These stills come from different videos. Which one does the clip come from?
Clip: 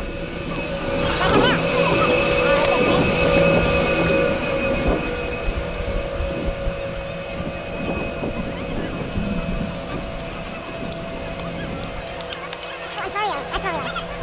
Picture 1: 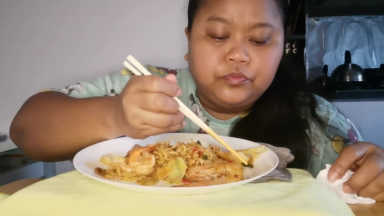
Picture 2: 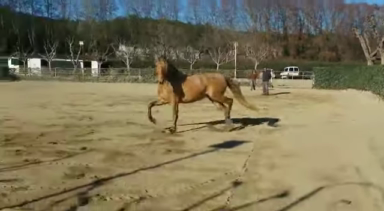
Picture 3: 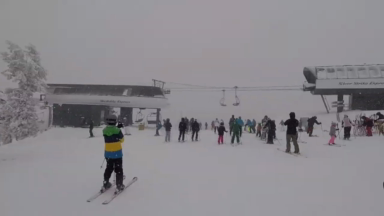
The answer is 3